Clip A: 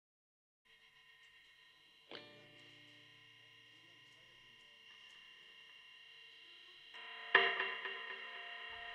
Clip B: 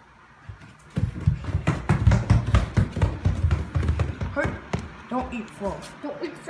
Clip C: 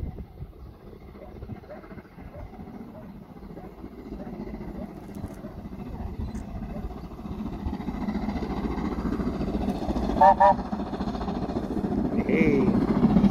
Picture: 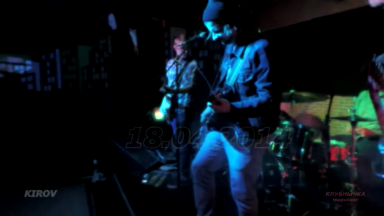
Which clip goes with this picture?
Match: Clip A